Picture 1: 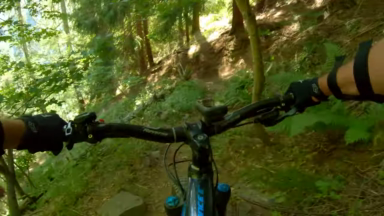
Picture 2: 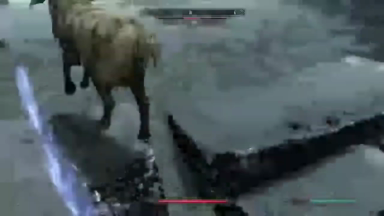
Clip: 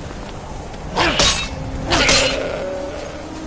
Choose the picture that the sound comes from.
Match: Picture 2